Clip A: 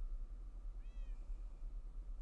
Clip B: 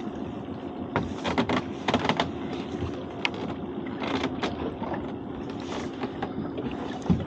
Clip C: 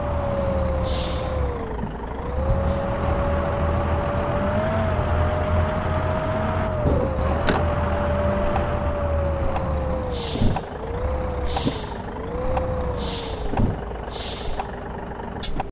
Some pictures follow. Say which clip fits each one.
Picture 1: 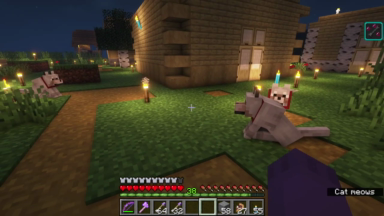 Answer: A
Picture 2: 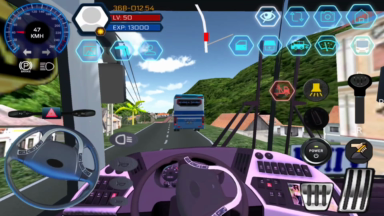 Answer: C